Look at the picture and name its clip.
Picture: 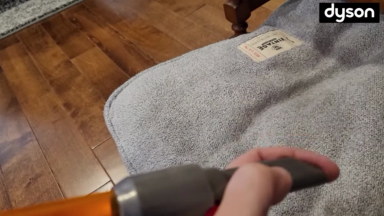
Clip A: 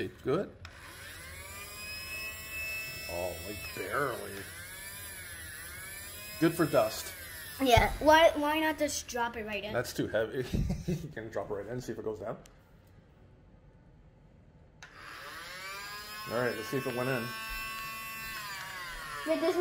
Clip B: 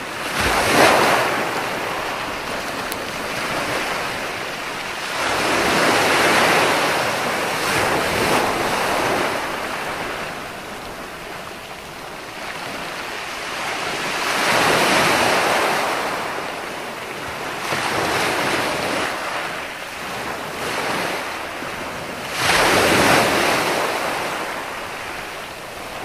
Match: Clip A